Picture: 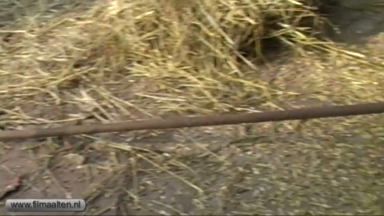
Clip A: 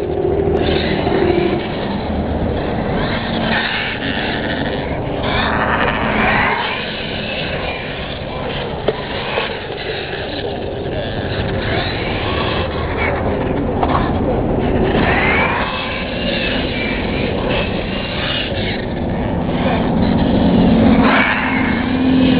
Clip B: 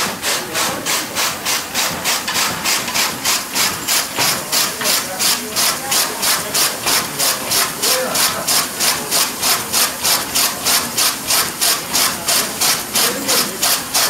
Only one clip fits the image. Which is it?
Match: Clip B